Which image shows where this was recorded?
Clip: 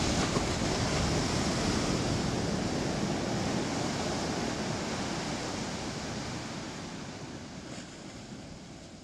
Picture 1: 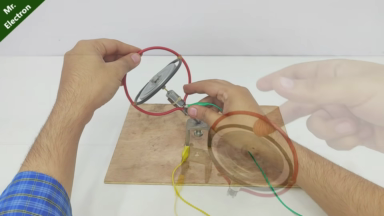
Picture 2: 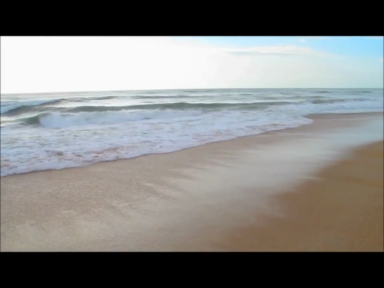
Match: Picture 2